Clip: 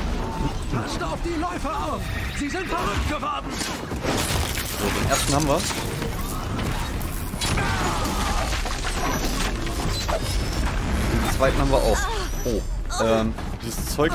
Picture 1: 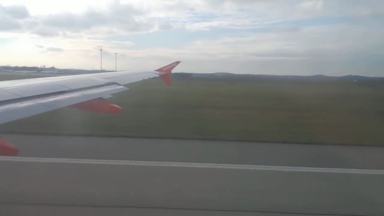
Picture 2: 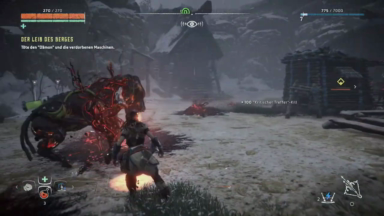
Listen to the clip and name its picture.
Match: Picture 2